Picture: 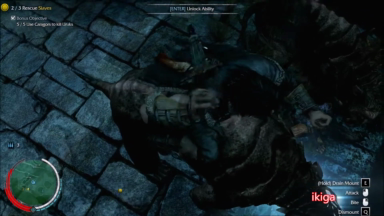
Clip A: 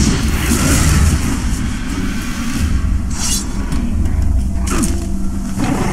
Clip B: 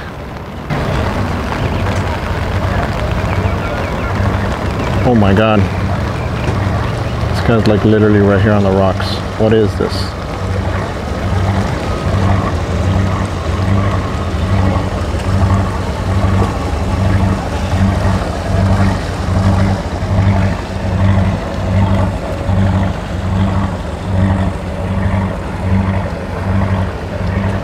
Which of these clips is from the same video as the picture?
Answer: A